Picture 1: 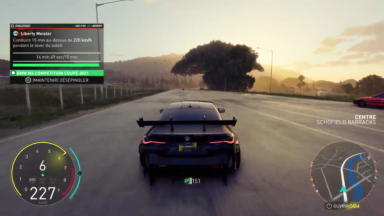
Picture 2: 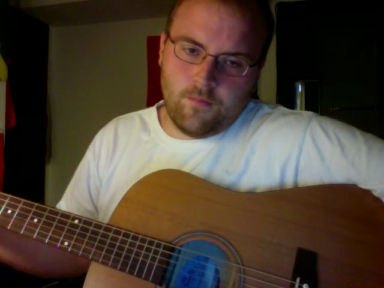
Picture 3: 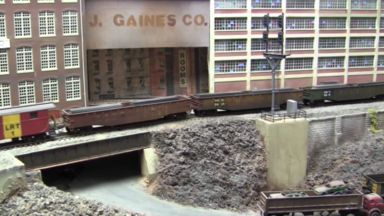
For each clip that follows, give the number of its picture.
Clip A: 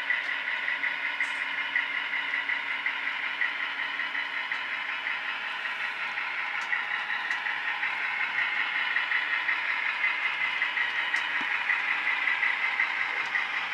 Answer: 3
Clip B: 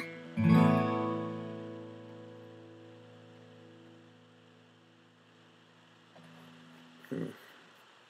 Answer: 2